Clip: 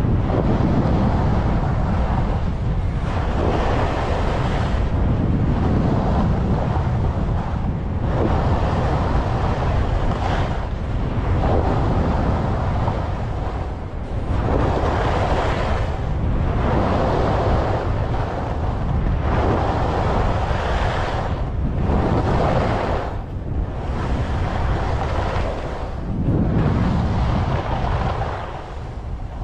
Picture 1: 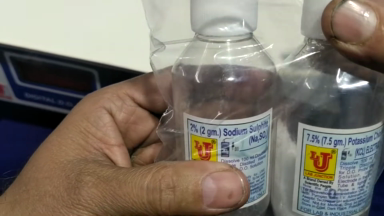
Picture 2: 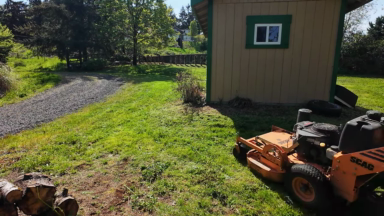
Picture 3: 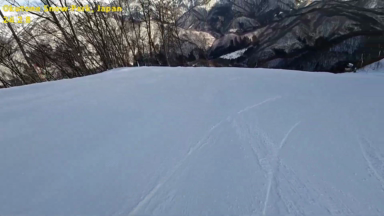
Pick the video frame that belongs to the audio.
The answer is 3